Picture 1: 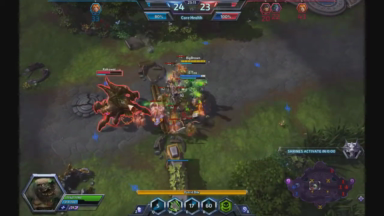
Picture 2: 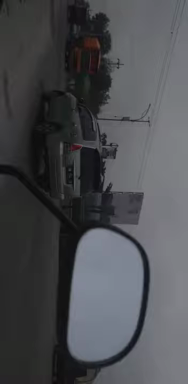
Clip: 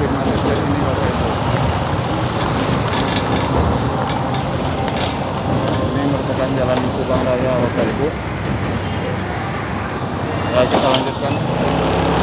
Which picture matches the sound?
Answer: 2